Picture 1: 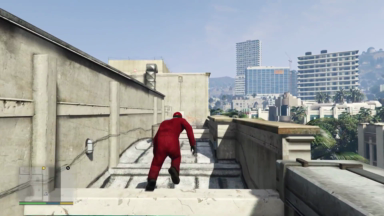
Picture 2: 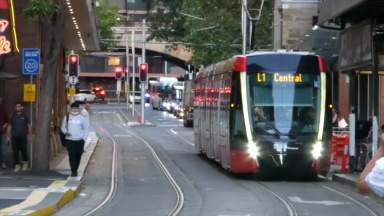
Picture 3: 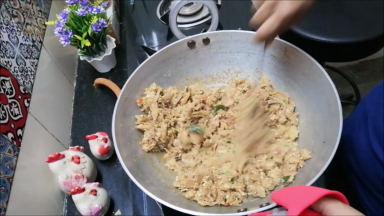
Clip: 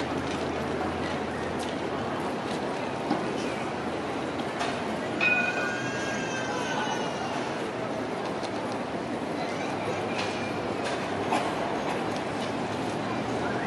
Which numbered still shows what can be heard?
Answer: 2